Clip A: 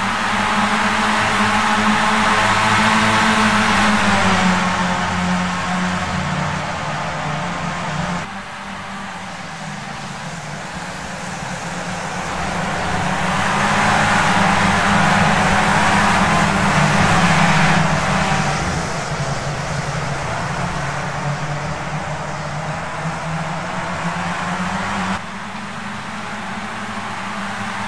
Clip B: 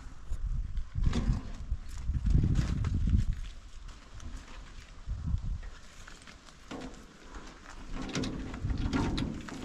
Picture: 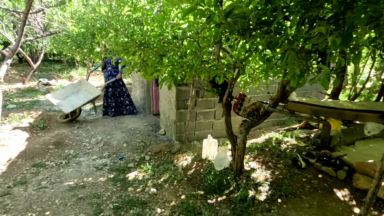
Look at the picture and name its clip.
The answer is B